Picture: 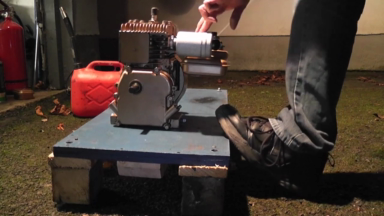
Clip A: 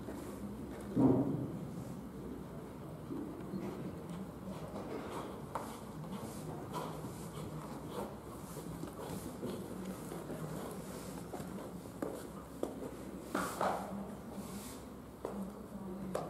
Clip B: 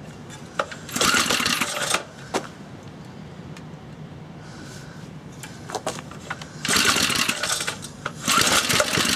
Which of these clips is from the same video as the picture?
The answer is B